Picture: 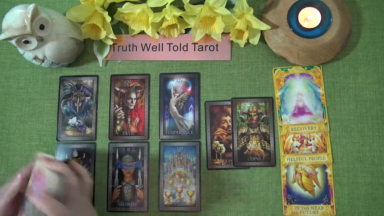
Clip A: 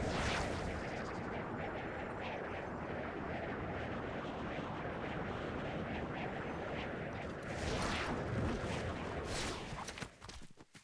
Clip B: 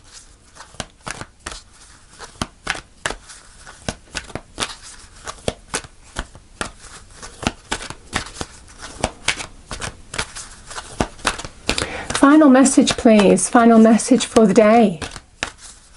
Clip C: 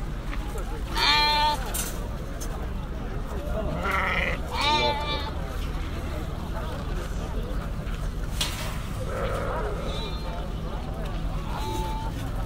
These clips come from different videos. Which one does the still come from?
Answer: B